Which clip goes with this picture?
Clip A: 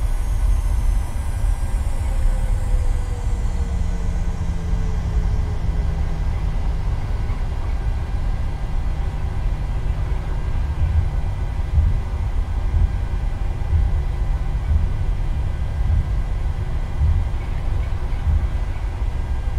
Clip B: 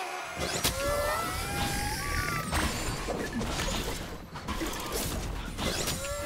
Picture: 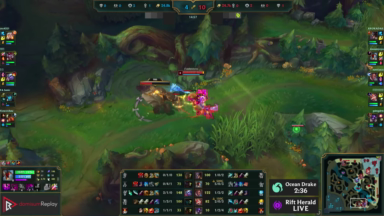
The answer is B